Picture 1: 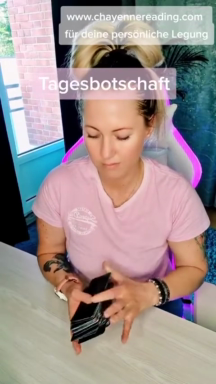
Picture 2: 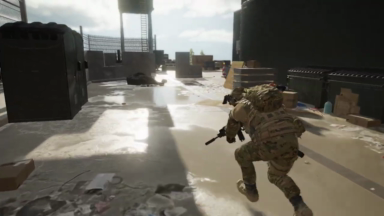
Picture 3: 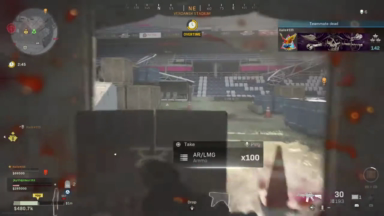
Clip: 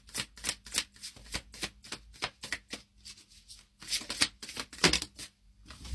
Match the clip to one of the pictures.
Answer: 1